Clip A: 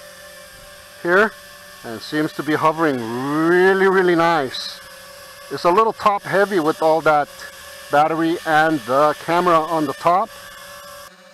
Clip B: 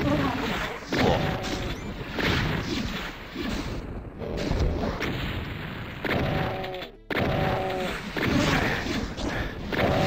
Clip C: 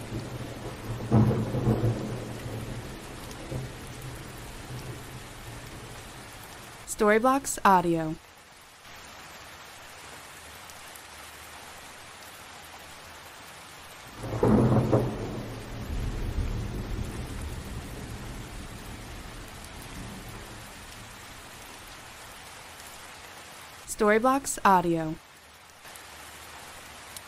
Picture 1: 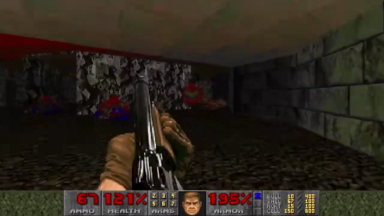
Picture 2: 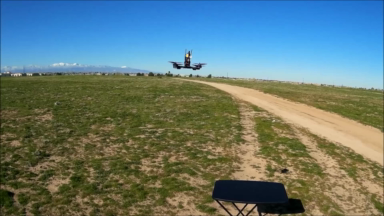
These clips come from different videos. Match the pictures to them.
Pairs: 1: B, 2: A